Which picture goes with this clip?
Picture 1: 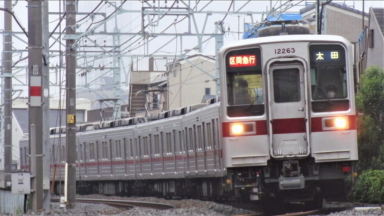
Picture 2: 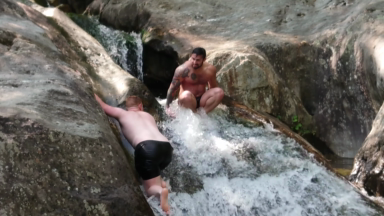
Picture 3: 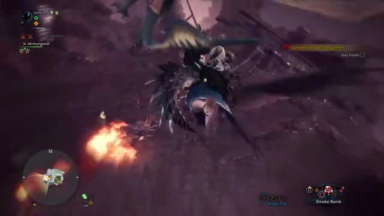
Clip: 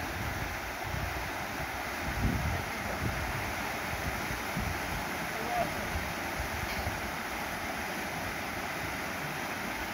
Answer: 2